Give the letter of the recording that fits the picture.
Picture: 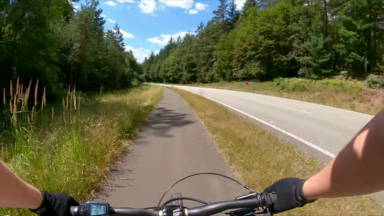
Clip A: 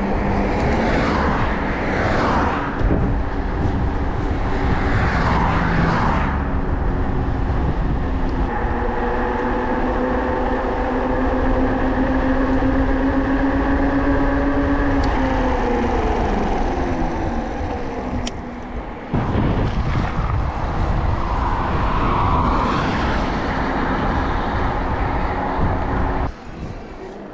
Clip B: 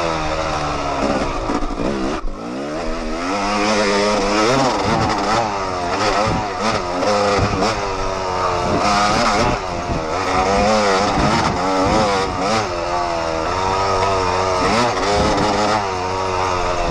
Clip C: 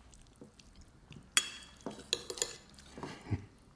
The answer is A